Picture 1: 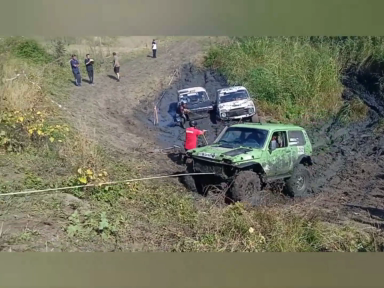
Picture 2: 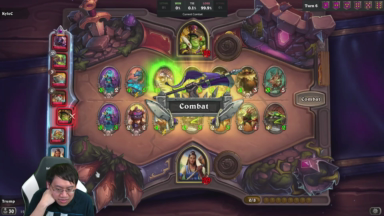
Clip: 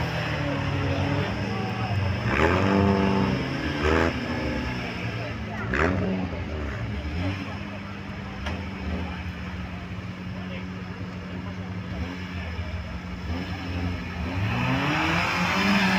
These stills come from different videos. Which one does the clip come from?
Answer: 1